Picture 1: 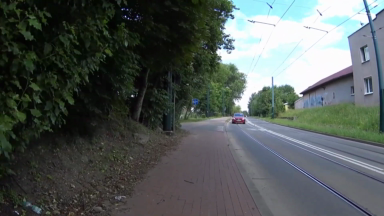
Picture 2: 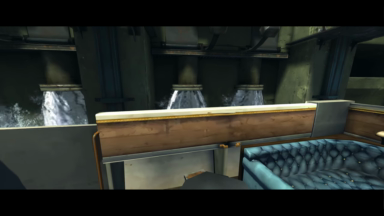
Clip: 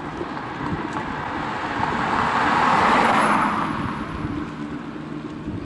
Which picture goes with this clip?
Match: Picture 1